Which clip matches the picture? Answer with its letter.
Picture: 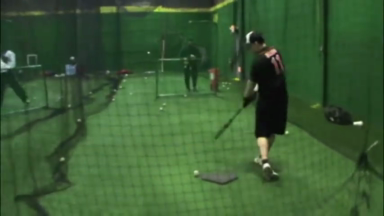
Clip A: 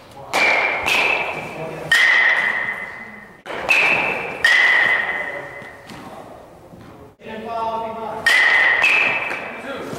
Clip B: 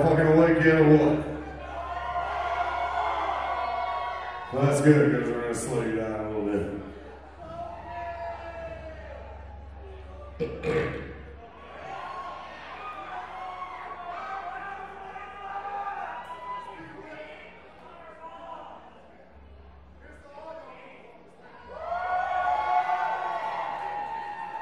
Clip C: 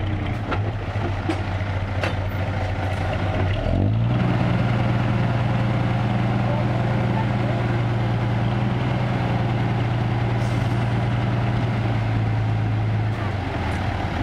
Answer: A